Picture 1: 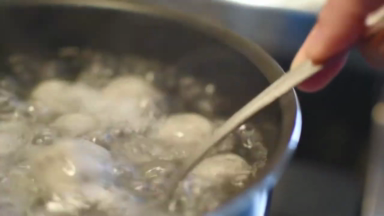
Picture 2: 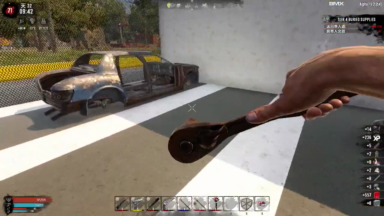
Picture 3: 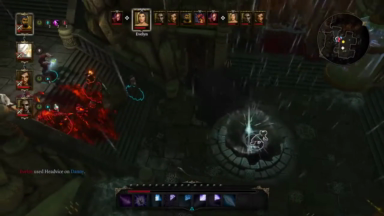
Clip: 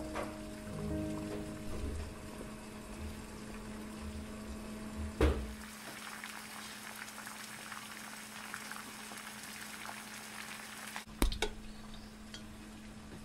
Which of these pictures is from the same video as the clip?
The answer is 1